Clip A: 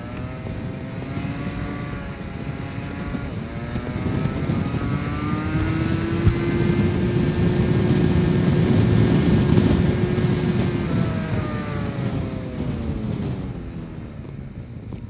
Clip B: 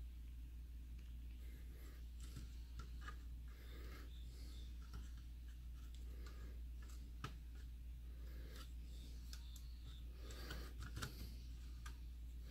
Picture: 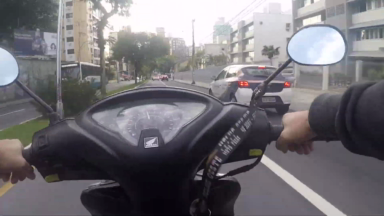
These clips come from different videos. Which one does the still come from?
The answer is A